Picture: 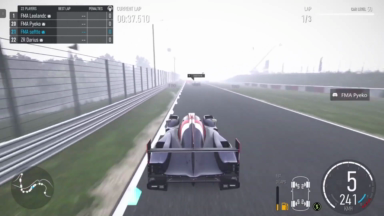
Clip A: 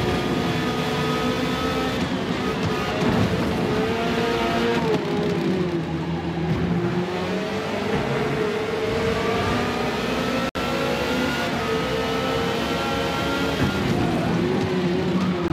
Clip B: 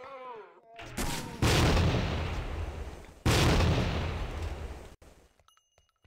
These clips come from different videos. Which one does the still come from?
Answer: A